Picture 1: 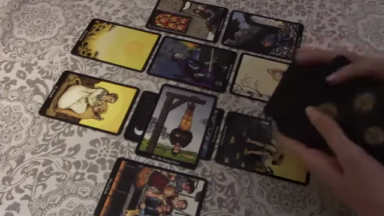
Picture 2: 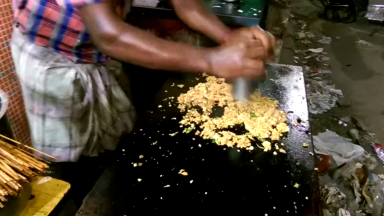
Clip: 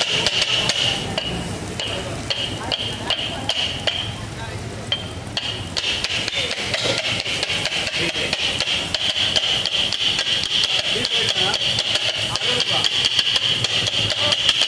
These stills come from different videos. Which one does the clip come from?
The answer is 2